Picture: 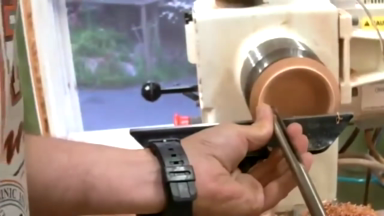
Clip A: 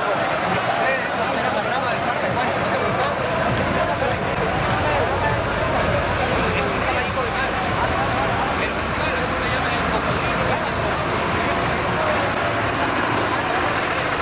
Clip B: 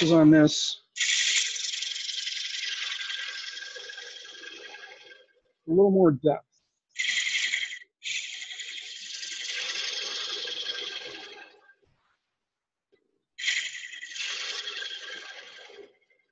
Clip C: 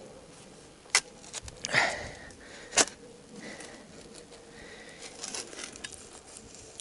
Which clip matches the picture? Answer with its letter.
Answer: B